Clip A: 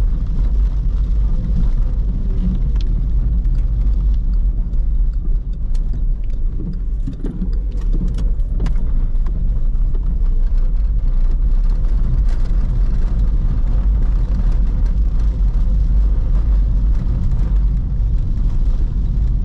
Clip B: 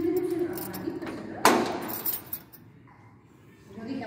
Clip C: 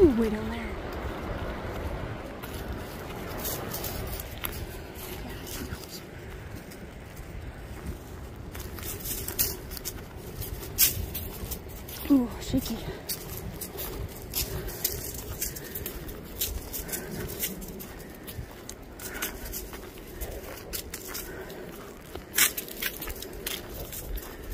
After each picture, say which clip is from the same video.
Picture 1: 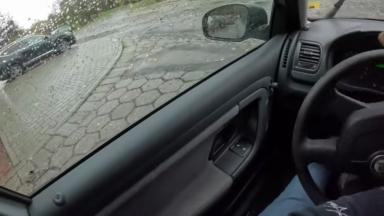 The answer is A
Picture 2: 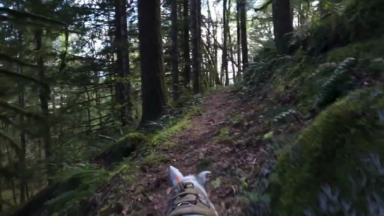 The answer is C